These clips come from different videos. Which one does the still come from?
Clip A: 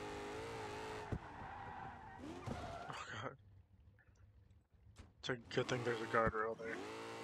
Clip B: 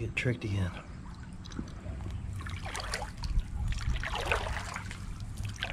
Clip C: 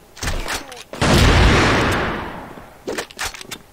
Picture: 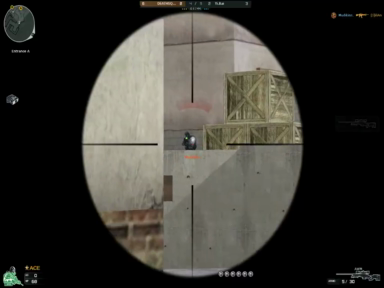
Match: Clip C